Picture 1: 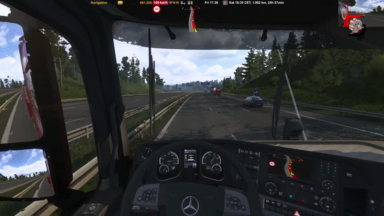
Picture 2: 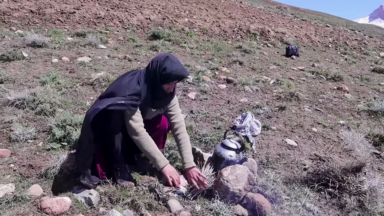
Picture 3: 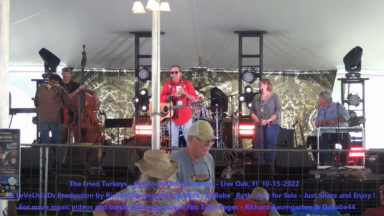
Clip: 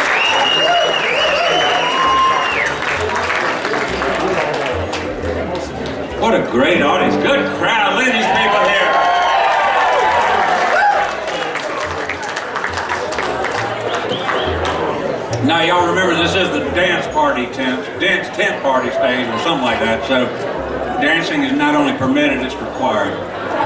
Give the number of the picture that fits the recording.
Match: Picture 3